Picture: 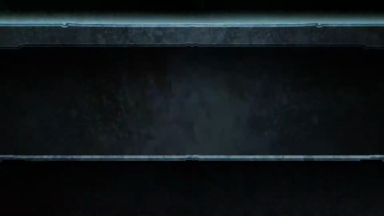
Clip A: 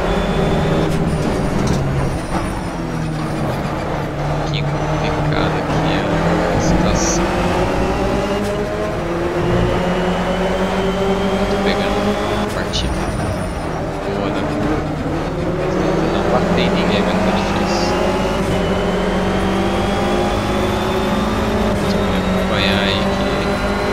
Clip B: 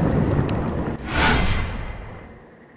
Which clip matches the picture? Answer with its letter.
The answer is B